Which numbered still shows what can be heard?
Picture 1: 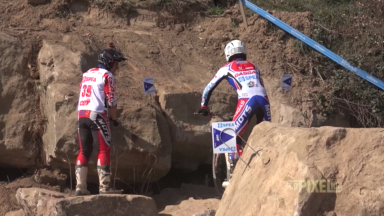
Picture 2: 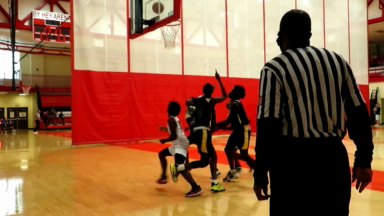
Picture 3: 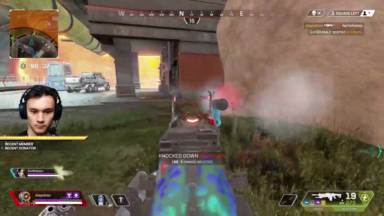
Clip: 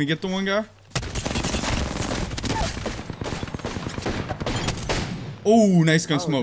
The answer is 3